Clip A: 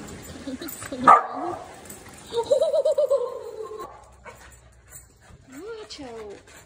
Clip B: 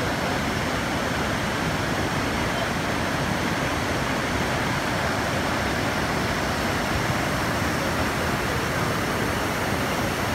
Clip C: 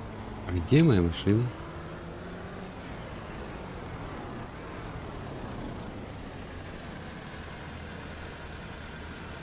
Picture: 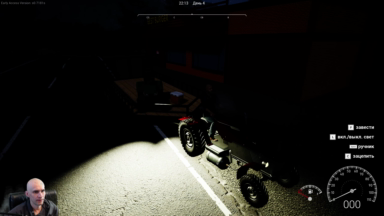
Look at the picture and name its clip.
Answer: C